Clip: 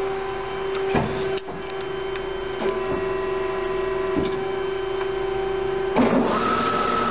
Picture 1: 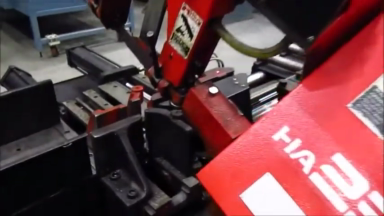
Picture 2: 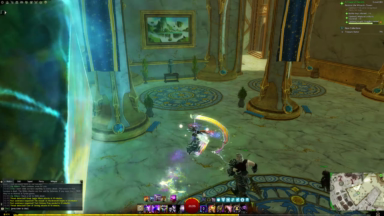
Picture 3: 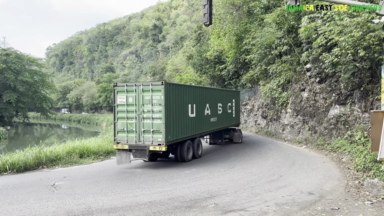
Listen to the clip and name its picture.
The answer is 1